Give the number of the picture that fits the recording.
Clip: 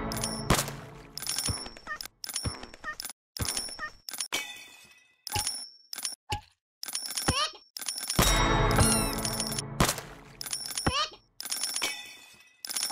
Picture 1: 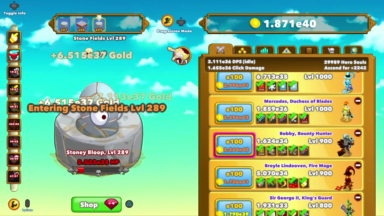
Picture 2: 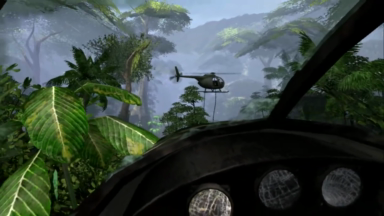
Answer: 1